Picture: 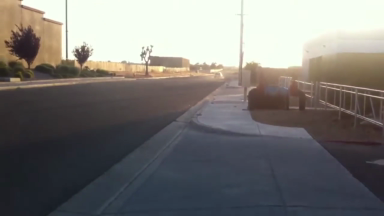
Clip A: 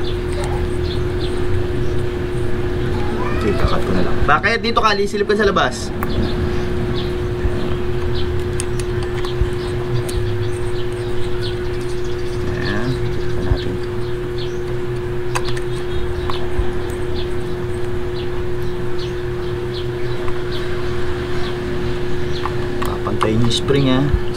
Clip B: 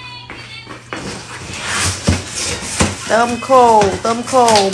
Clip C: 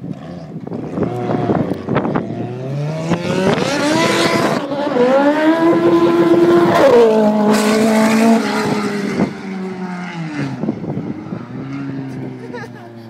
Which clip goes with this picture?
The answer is C